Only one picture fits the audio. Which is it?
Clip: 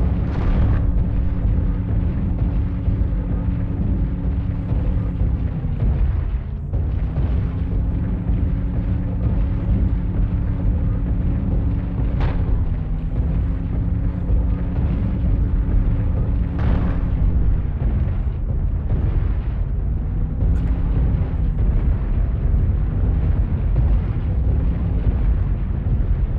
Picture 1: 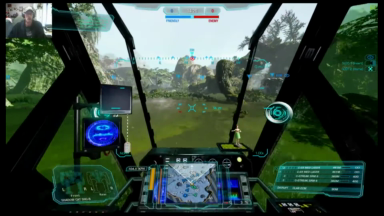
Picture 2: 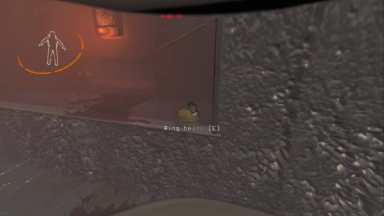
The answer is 1